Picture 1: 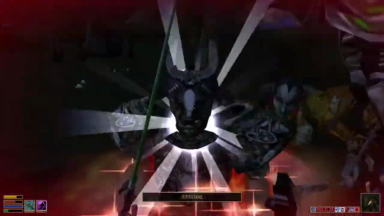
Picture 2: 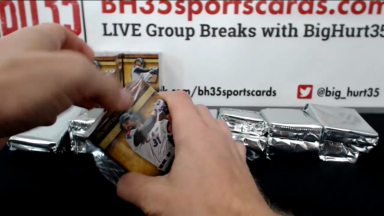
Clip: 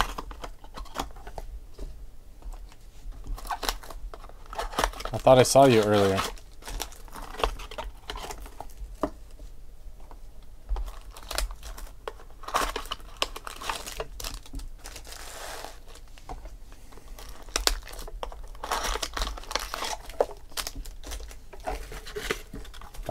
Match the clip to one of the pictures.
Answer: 2